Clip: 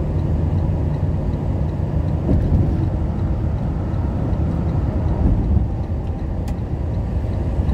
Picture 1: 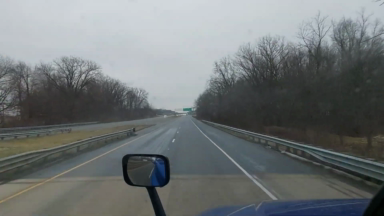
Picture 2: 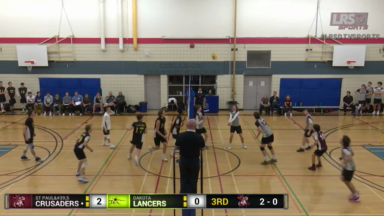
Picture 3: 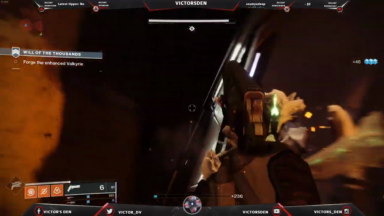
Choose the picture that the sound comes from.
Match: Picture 1